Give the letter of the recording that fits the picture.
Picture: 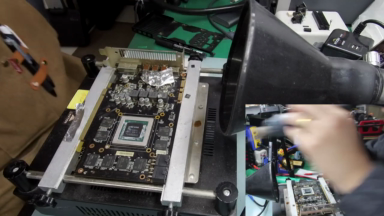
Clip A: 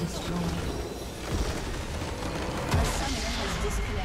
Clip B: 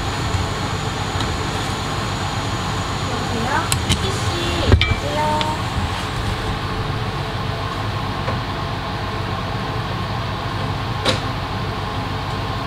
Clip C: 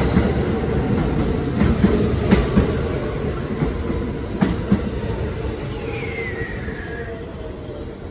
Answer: B